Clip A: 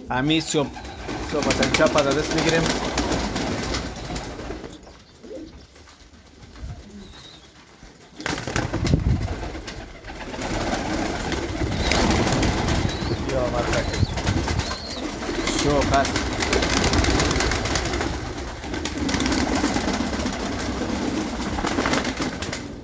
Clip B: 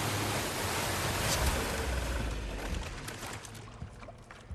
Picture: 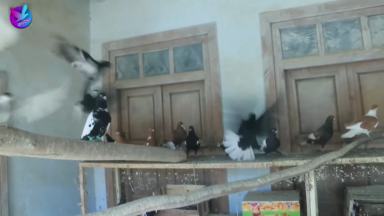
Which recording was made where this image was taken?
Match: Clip A